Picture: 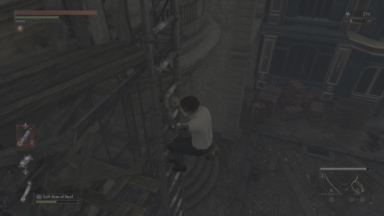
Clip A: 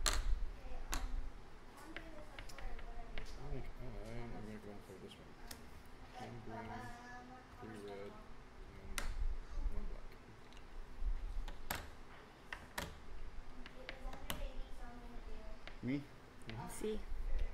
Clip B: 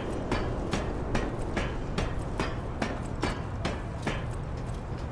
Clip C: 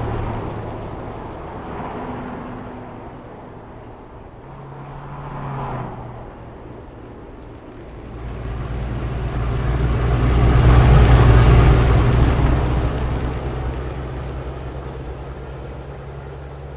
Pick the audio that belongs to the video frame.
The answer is B